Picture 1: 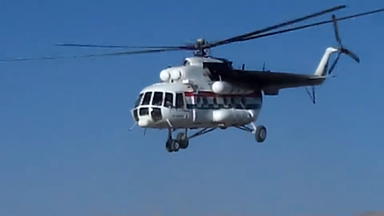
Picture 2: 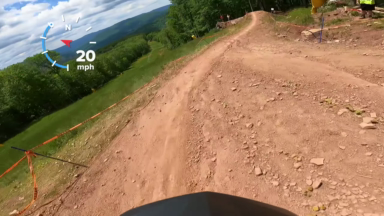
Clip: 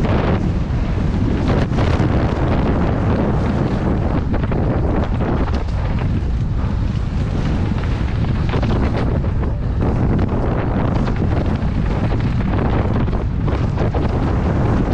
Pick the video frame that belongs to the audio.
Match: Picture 2